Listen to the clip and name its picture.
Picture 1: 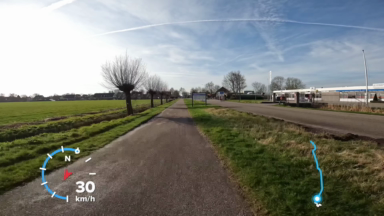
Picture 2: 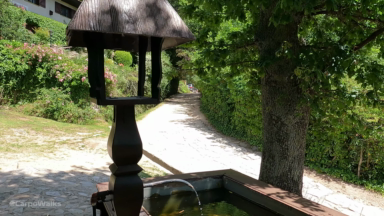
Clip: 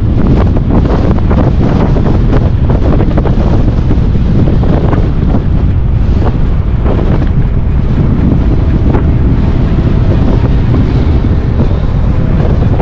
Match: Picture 1